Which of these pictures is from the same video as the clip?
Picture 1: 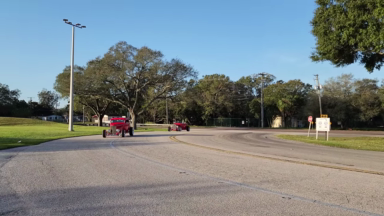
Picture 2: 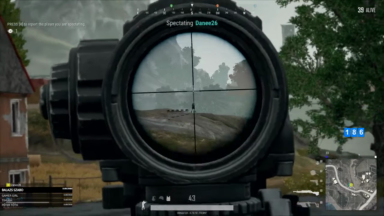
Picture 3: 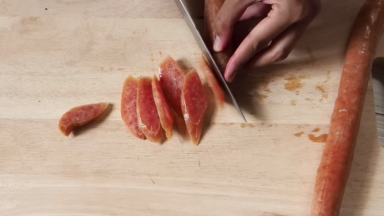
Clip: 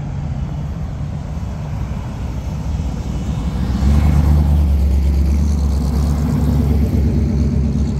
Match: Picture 1